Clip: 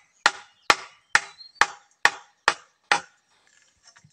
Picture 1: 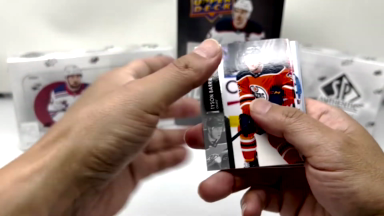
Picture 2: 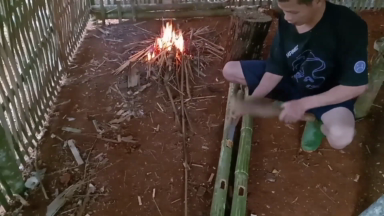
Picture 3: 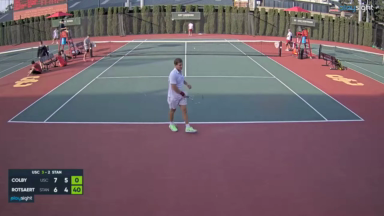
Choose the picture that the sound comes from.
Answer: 2